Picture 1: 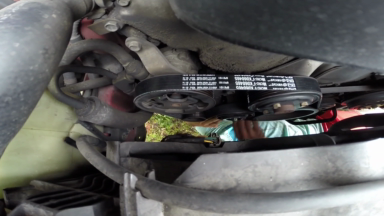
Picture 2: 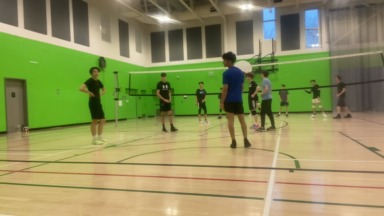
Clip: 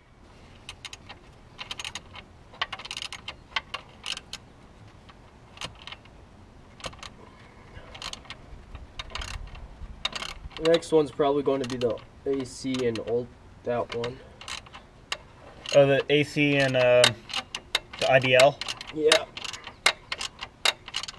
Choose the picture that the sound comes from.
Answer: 1